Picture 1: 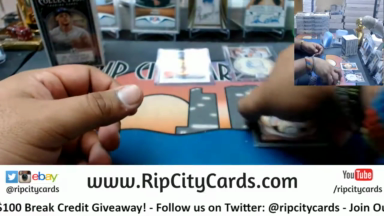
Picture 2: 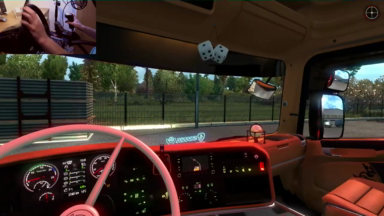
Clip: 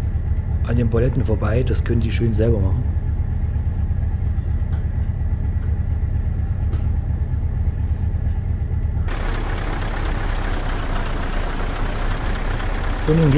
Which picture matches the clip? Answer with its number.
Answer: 2